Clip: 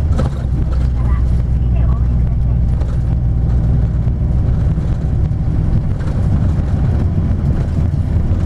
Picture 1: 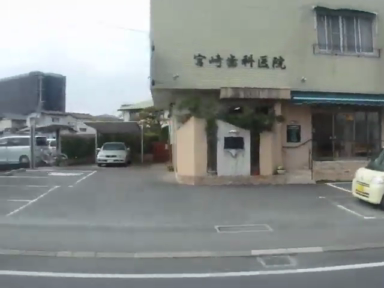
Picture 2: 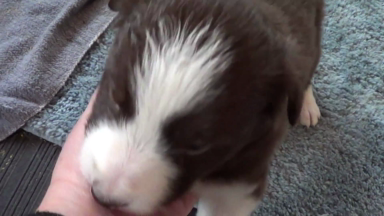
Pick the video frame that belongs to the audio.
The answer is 1